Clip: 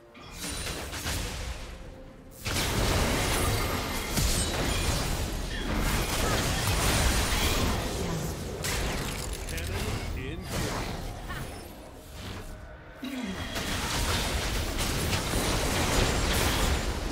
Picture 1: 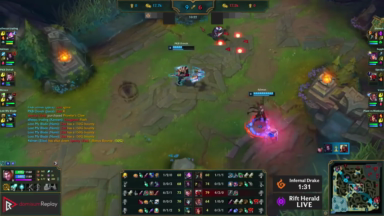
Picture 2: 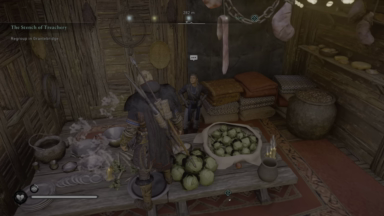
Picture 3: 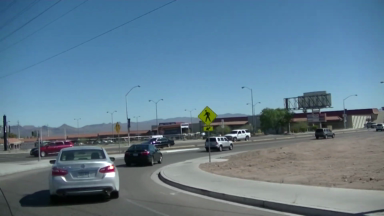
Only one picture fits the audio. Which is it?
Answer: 1